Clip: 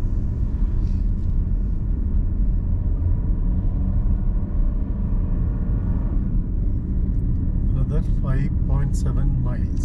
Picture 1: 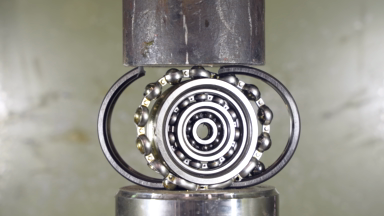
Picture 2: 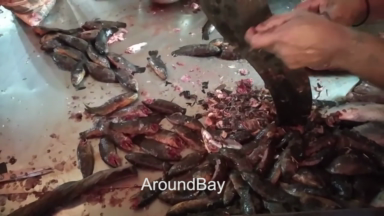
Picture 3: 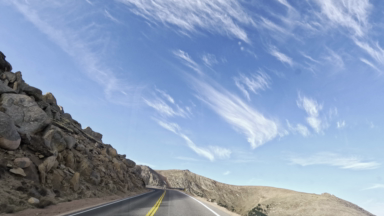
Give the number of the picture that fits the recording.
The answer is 3